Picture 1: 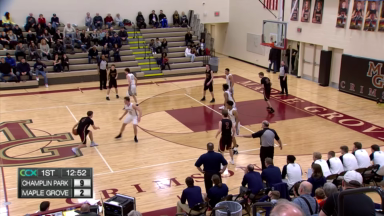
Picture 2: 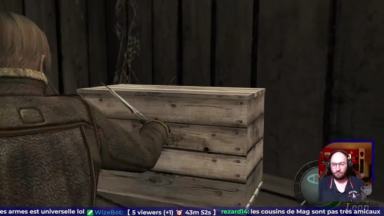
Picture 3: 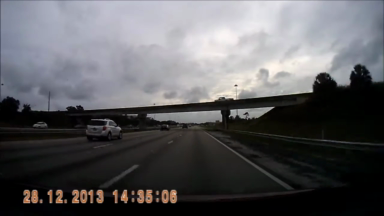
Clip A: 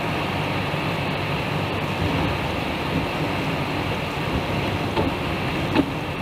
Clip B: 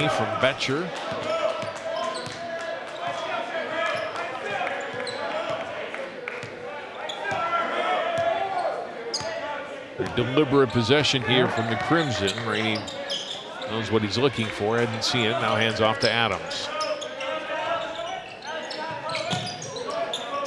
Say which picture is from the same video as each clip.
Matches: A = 3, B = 1